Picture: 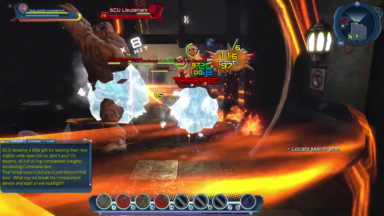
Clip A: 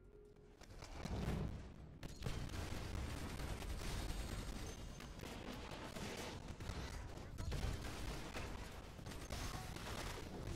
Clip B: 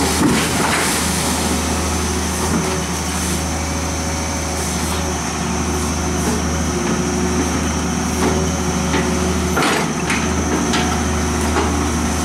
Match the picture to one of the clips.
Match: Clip A